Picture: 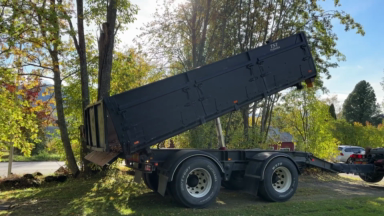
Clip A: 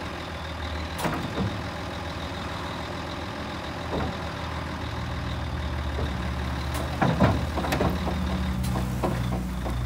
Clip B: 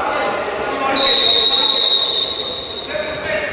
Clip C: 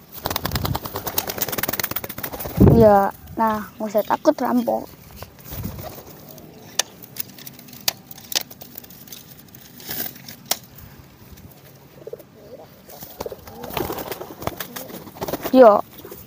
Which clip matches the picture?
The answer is A